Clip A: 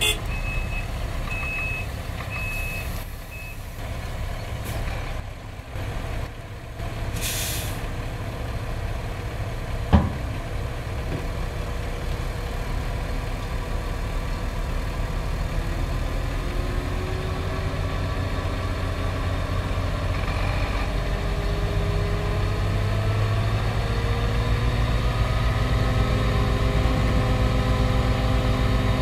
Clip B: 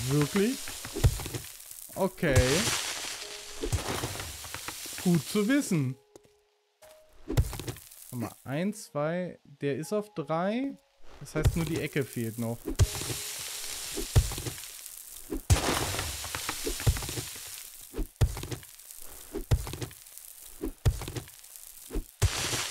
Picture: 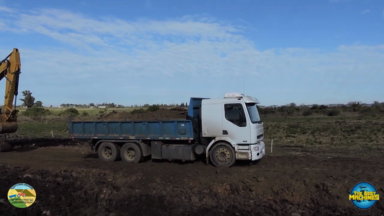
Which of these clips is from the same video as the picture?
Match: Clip A